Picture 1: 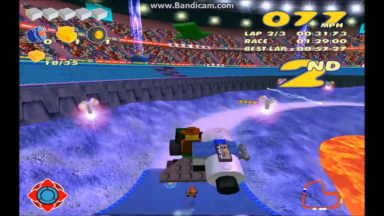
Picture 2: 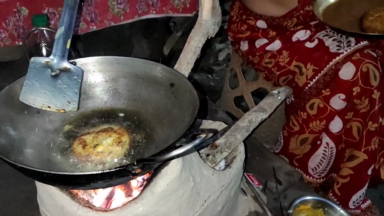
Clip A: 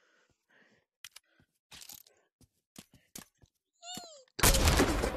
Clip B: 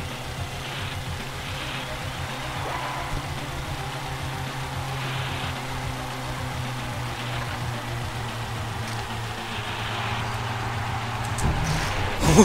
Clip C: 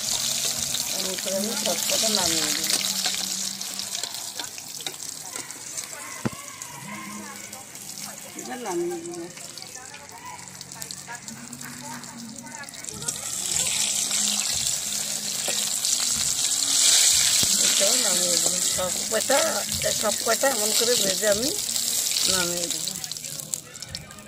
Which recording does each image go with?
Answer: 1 B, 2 C